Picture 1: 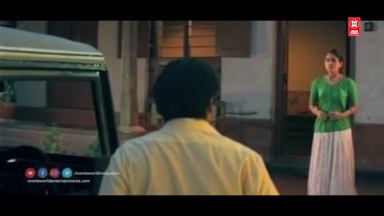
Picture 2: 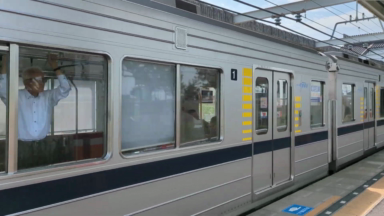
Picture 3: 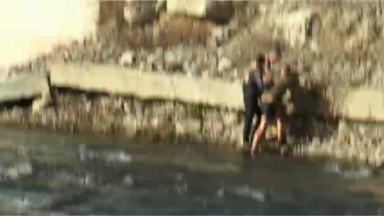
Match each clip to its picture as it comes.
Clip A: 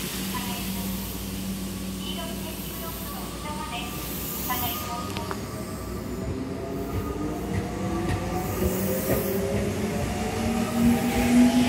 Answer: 2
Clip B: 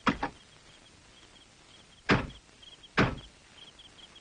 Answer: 1